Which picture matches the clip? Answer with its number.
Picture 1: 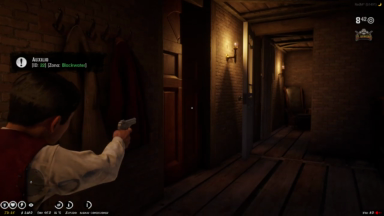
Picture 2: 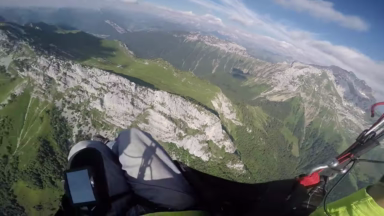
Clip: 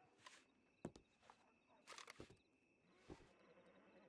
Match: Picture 1